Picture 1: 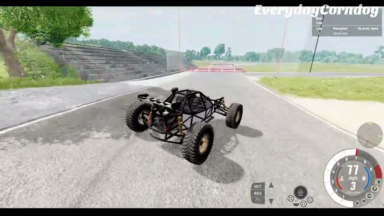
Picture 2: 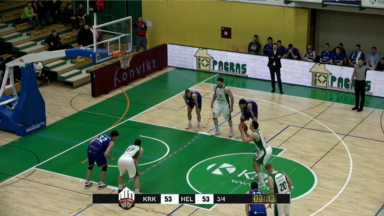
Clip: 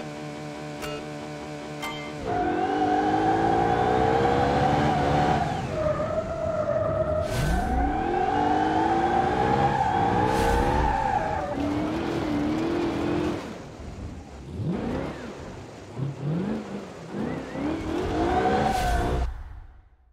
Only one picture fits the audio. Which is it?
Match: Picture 1